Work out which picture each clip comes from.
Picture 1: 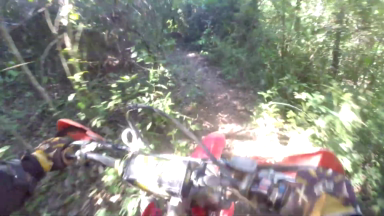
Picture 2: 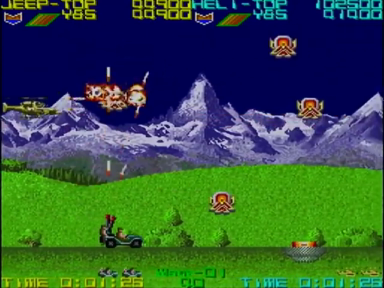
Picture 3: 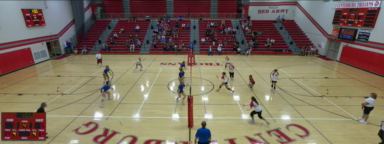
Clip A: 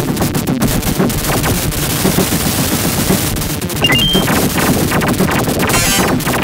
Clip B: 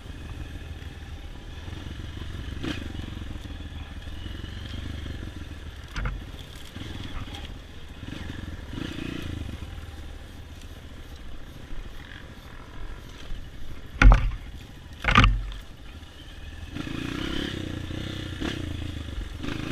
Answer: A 2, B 1